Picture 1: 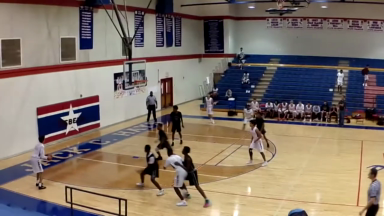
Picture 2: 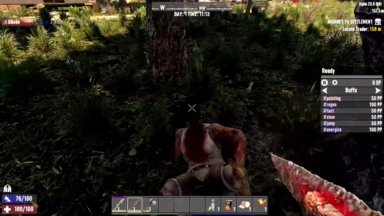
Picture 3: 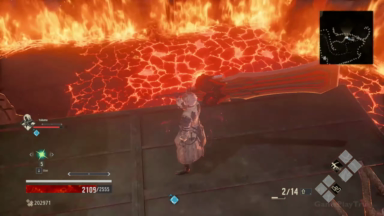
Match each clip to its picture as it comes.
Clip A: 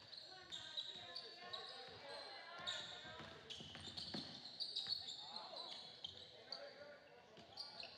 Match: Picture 1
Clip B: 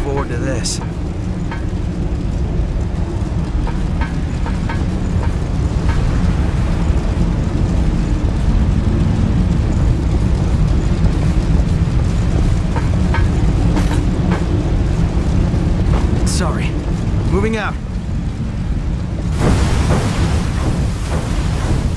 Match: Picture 3